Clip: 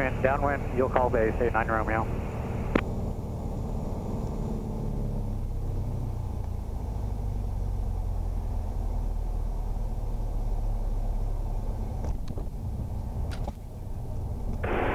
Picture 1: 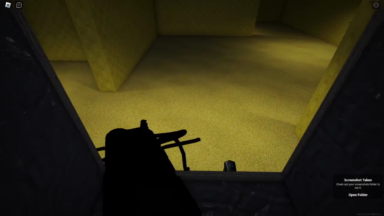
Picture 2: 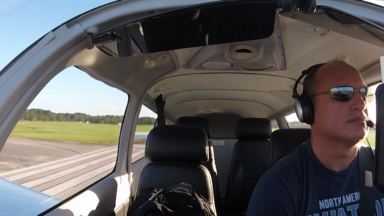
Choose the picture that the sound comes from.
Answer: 2